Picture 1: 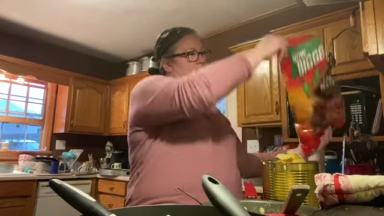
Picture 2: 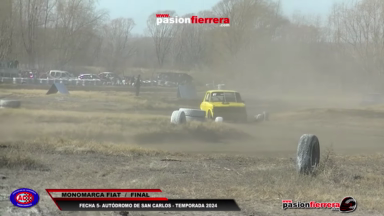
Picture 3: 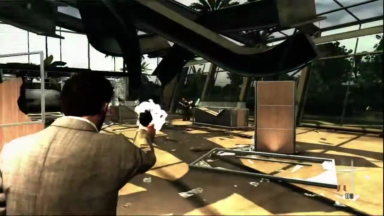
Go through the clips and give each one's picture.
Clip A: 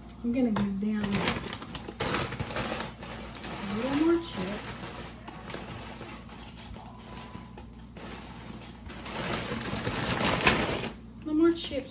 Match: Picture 1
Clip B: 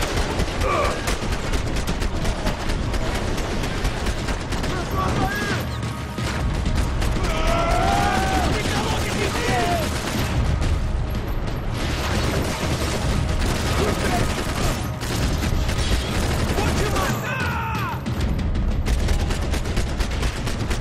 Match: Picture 3